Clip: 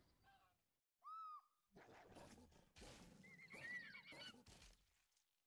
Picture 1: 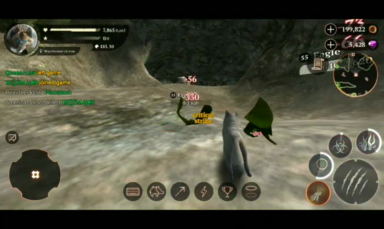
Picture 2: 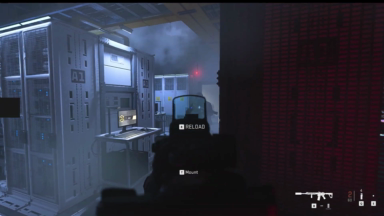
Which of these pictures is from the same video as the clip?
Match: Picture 1